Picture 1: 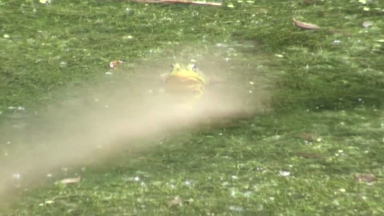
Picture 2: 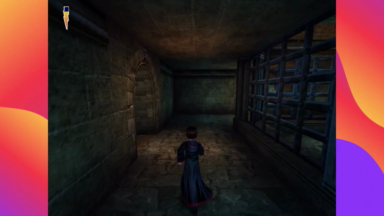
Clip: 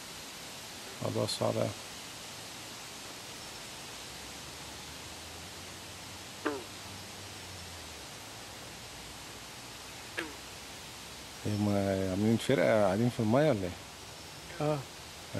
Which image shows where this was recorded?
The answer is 1